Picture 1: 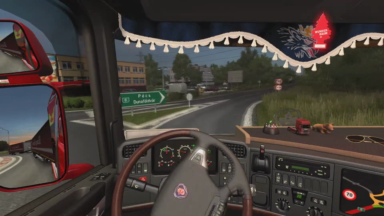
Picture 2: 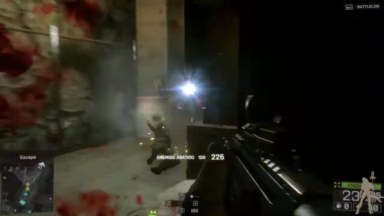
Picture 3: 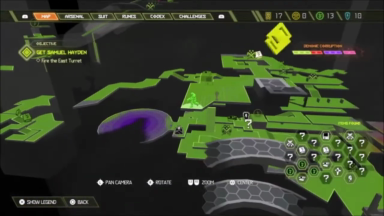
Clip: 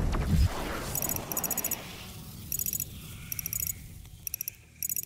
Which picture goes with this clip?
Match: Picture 3